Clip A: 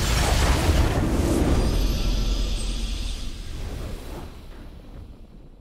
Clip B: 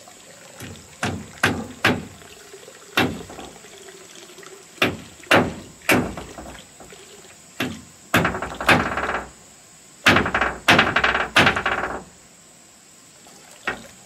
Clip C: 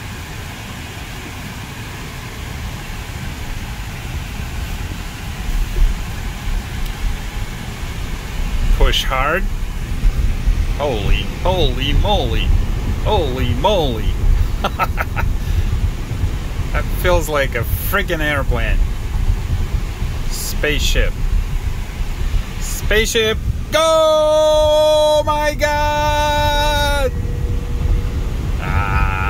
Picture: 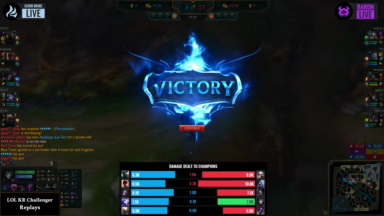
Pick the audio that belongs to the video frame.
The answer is A